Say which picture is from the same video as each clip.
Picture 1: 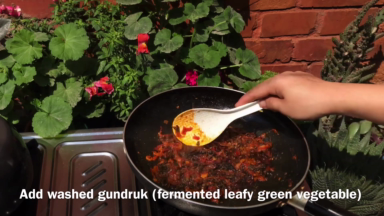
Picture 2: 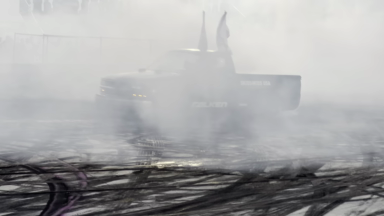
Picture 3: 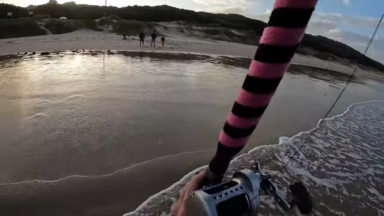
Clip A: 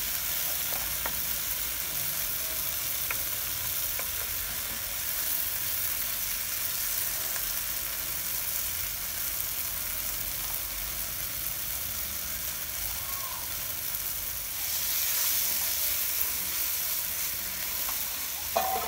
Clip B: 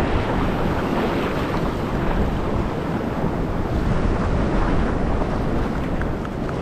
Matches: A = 1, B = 3